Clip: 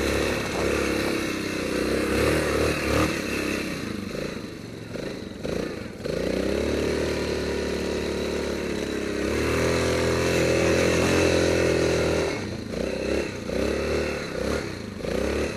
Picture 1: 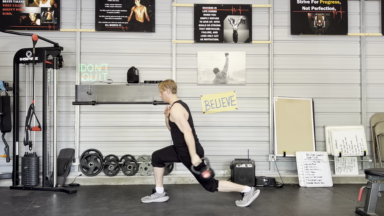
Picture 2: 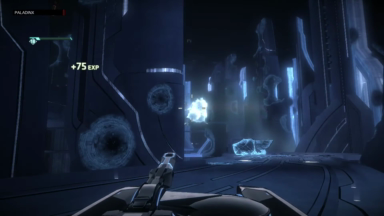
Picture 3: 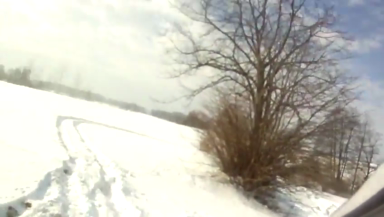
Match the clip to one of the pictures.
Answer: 3